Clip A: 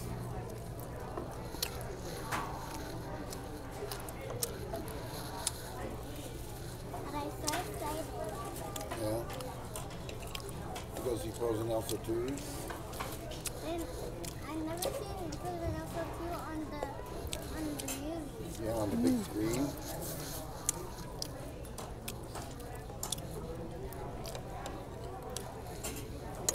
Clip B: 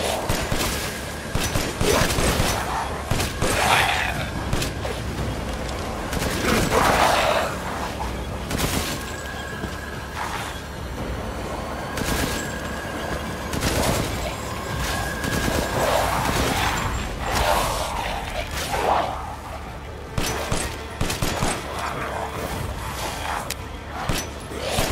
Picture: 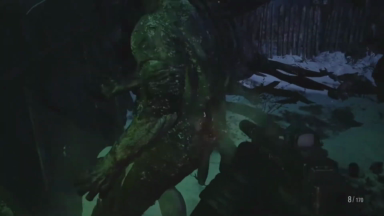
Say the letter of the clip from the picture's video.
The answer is B